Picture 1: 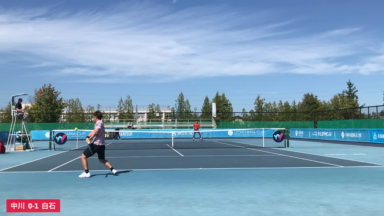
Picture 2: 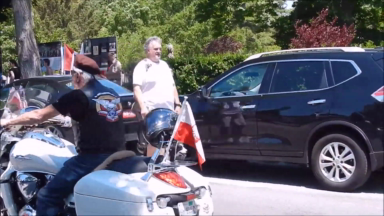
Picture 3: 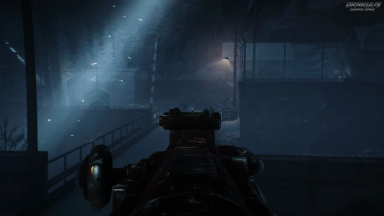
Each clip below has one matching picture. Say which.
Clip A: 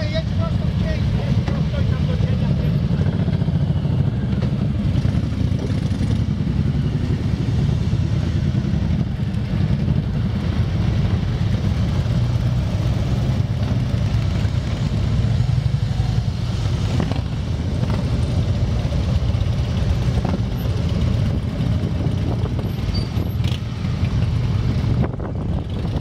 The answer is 2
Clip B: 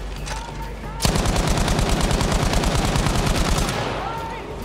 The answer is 3